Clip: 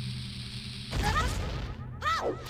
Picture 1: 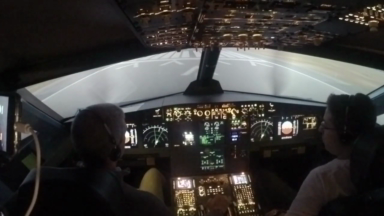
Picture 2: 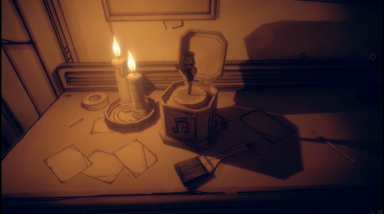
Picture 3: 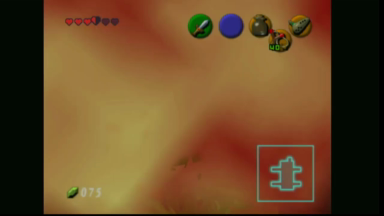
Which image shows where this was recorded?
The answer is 3